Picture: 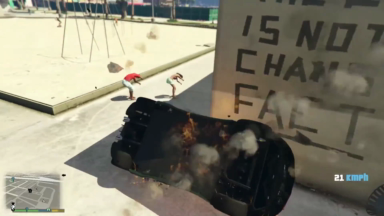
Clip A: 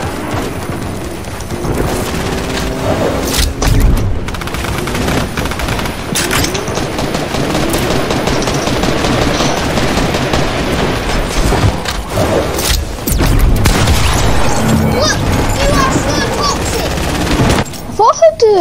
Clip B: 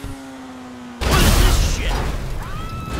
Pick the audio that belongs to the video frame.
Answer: B